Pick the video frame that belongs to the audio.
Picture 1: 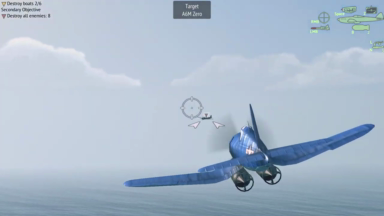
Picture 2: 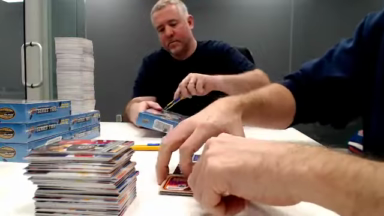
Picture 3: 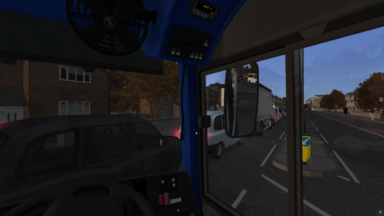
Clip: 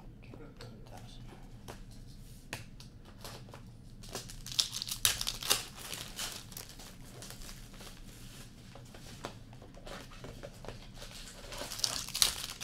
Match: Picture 2